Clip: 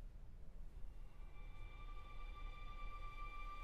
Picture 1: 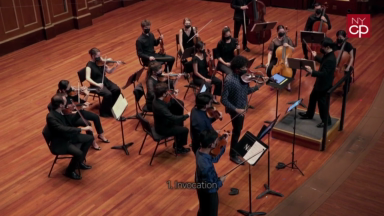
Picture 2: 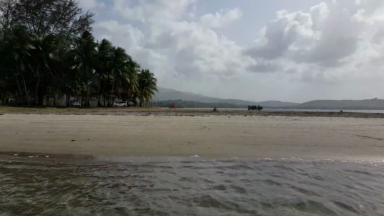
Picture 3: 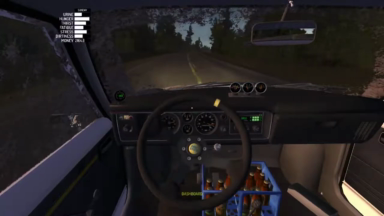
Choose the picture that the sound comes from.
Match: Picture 1